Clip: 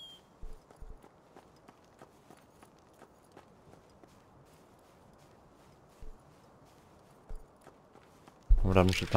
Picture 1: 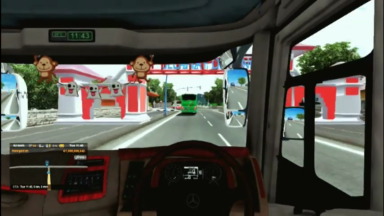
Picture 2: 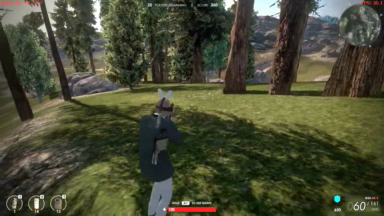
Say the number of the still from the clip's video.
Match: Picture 2